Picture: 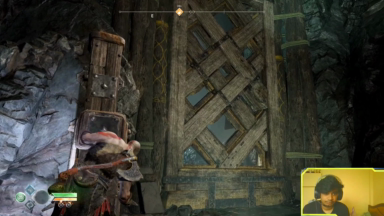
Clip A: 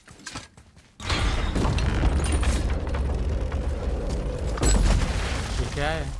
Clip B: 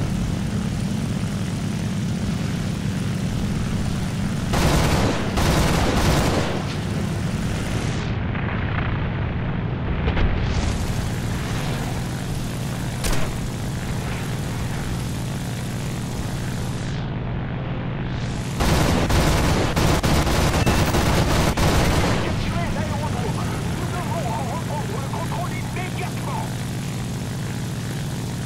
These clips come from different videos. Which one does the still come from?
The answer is A